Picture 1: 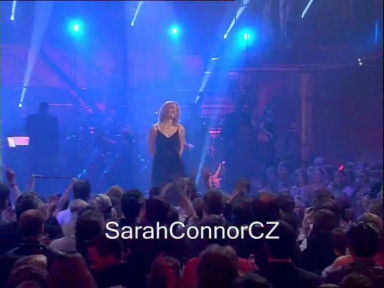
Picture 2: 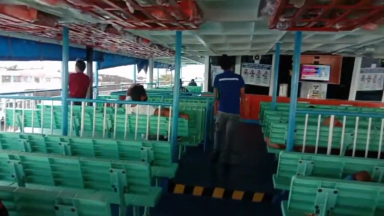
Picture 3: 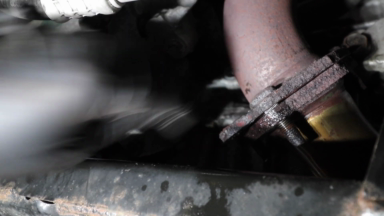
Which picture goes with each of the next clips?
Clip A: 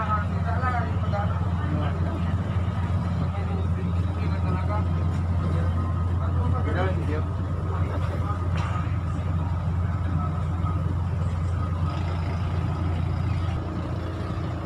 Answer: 2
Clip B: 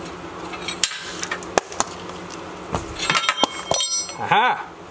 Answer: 3